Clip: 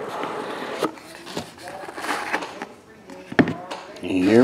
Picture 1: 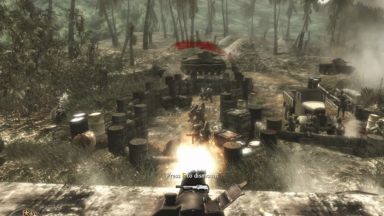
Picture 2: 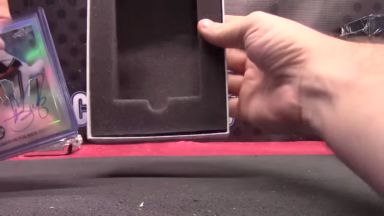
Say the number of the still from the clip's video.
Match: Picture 2